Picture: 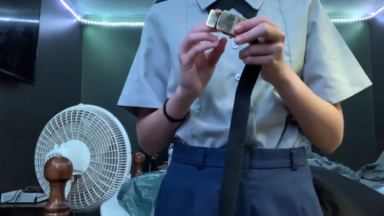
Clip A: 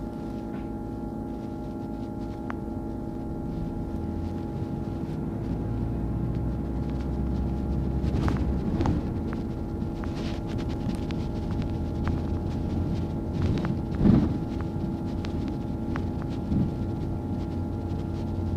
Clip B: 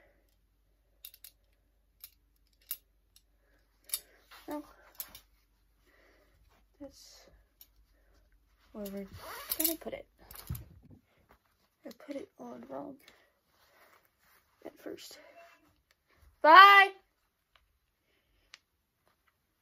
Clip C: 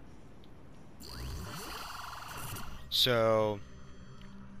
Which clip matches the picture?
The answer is B